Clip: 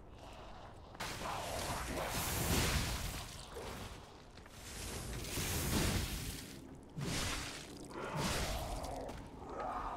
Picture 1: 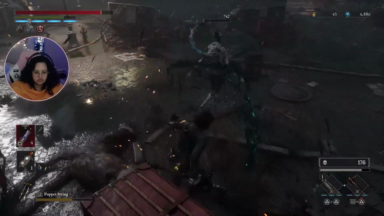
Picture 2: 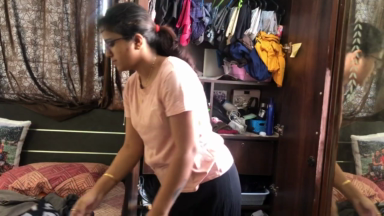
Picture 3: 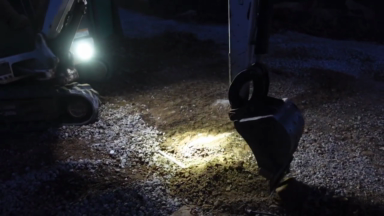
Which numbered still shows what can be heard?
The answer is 1